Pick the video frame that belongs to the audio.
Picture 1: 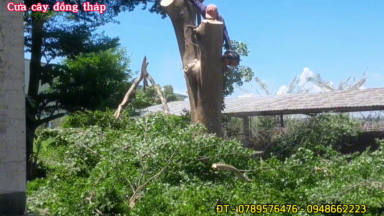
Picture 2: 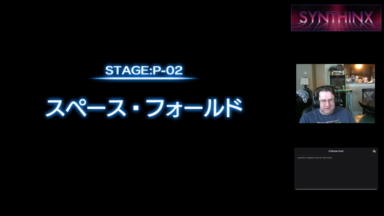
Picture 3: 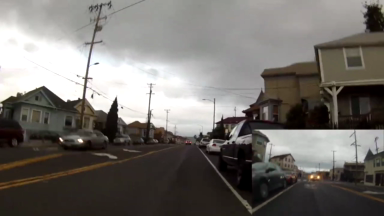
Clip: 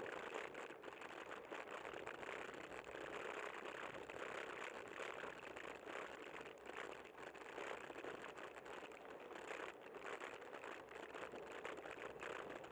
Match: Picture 3